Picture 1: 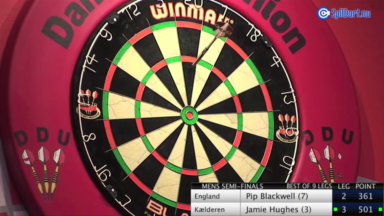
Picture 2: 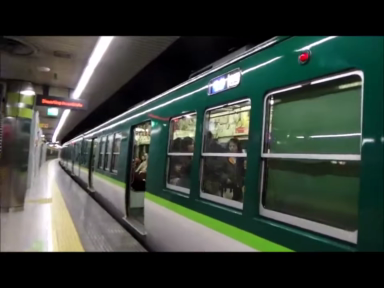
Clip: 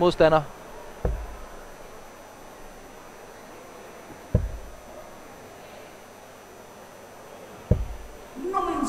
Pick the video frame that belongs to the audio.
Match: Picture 1